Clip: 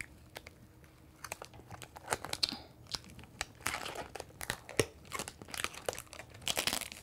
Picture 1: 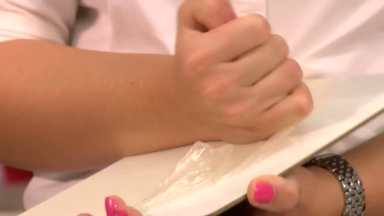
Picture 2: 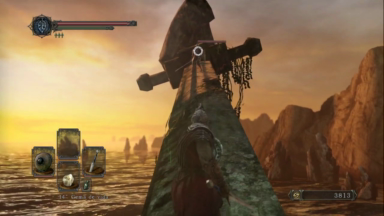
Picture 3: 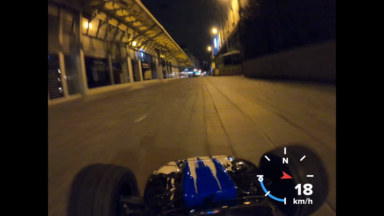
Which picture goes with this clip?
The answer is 1